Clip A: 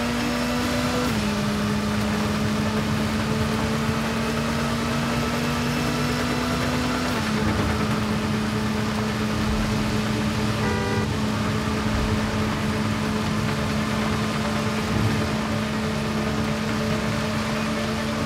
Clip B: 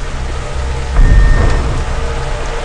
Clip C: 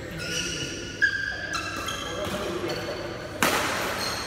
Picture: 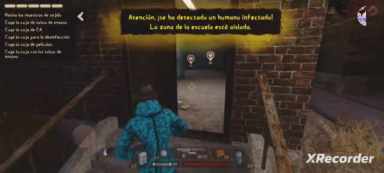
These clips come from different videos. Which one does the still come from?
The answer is B